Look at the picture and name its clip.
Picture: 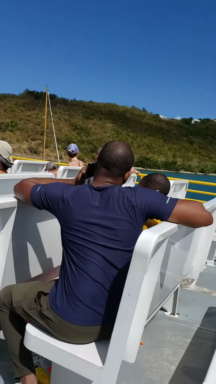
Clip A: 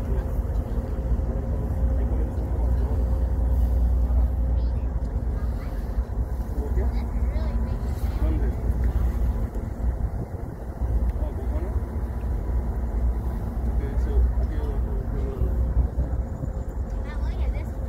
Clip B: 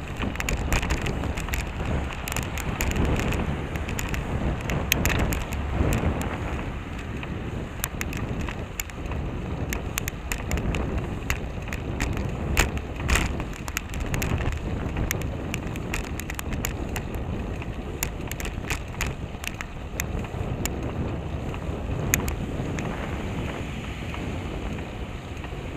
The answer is A